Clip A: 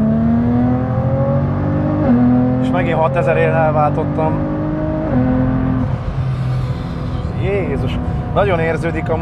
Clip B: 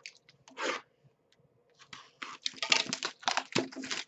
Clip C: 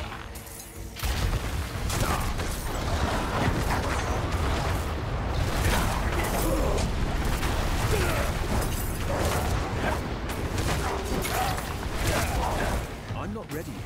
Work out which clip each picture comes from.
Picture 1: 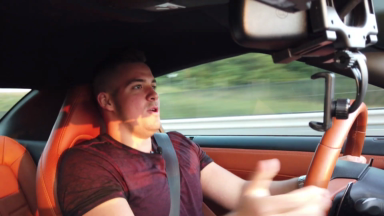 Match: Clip A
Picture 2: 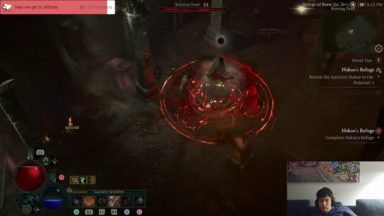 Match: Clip C